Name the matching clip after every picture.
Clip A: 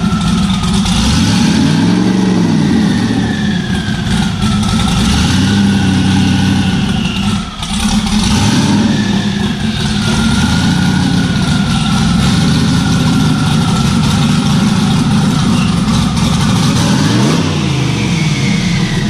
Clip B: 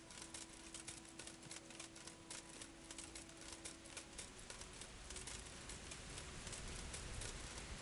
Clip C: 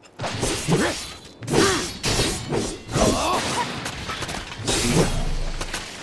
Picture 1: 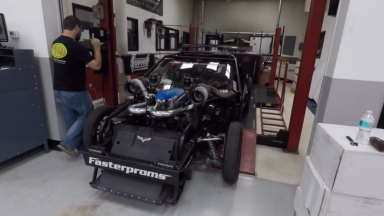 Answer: A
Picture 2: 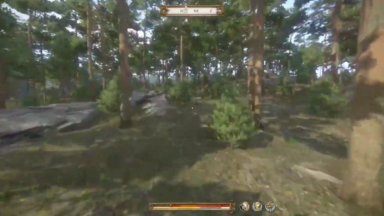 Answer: B